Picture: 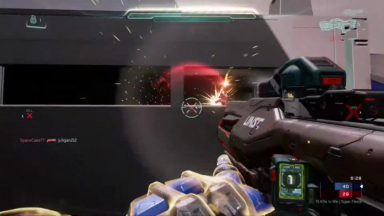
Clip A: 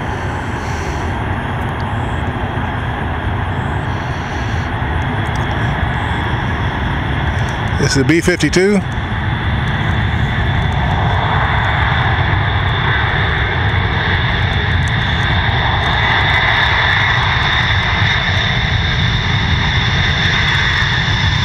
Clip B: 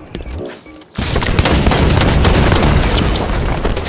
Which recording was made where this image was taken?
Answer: B